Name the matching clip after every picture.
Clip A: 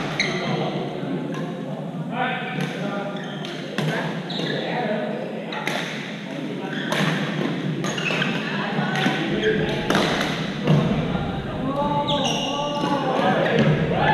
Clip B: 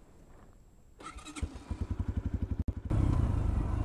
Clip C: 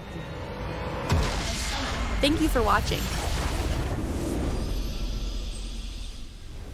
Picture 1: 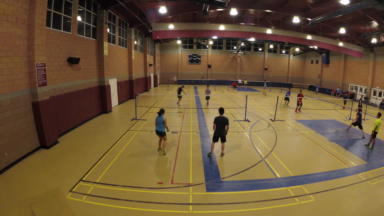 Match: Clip A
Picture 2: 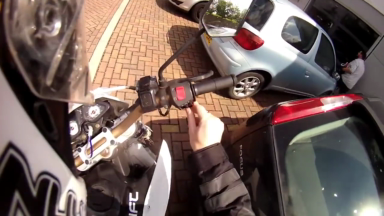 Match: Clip B